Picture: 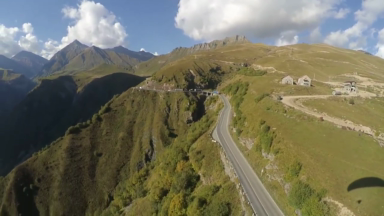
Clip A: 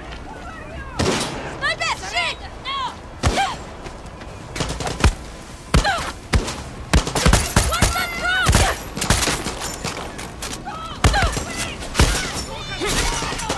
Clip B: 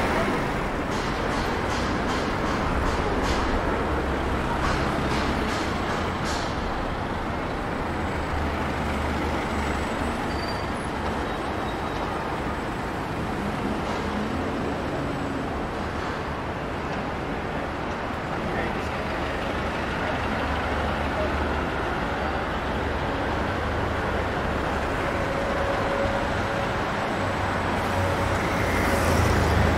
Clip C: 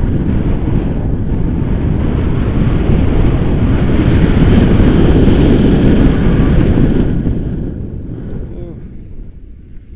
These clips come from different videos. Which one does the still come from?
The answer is C